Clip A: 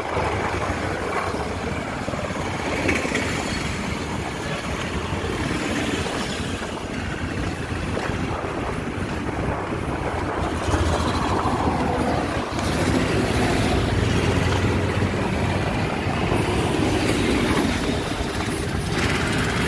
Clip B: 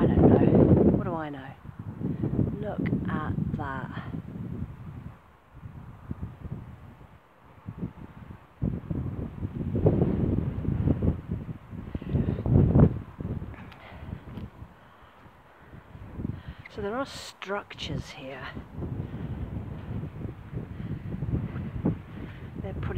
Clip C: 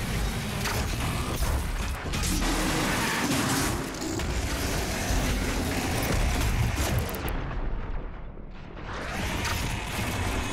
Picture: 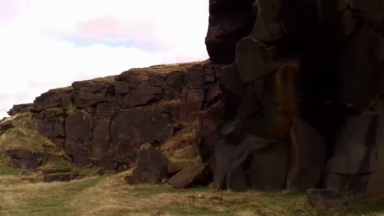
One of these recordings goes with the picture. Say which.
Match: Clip B